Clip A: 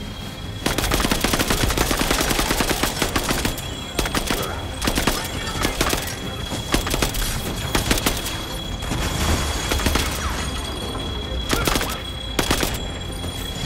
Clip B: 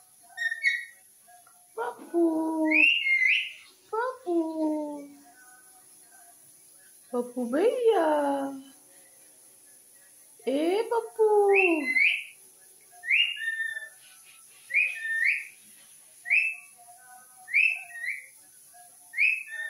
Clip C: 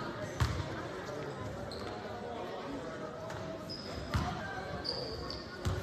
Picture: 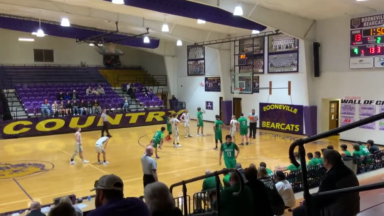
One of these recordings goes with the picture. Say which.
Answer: C